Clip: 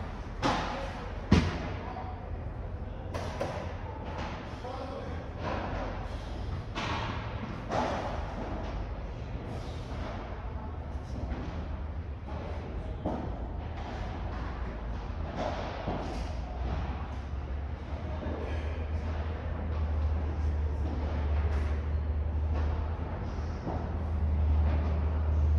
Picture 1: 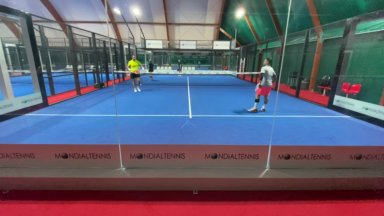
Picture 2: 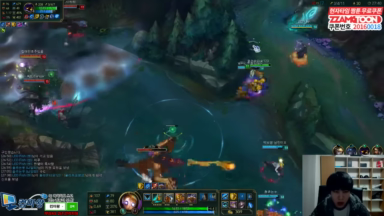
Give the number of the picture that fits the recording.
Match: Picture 1